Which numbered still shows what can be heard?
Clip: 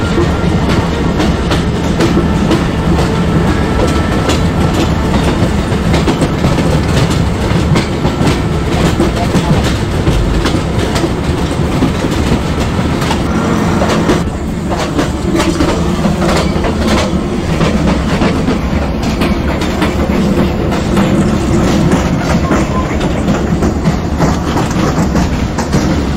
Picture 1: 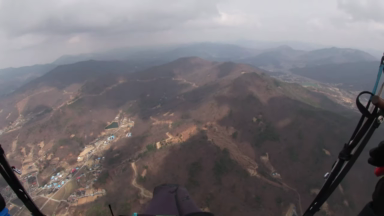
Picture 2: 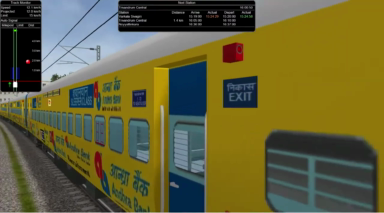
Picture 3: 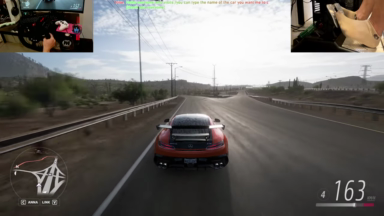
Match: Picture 2